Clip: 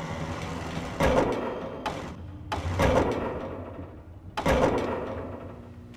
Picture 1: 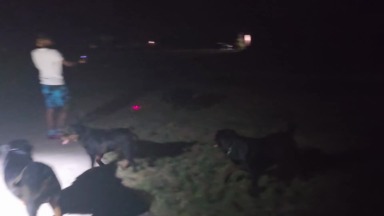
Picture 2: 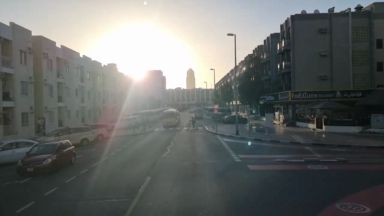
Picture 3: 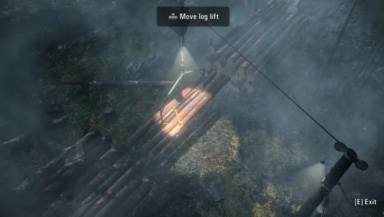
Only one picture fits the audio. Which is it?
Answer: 3